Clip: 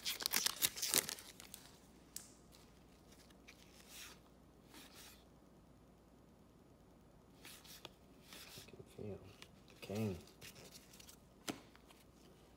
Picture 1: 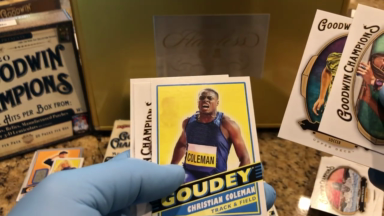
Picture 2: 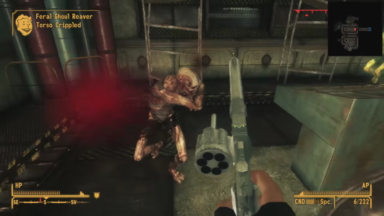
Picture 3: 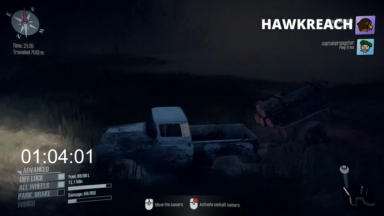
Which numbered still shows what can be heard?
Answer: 1